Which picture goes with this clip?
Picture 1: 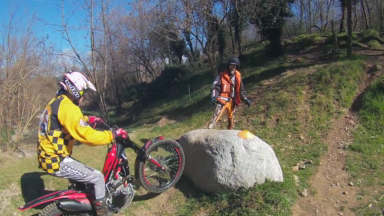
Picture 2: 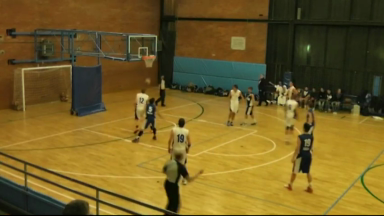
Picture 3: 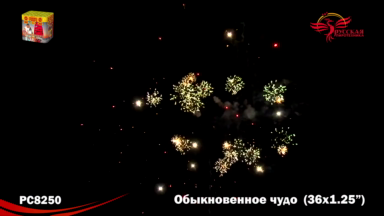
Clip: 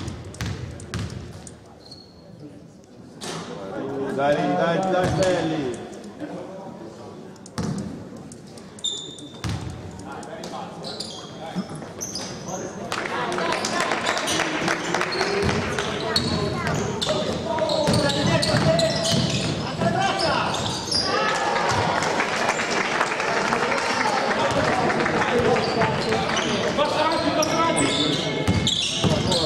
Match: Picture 2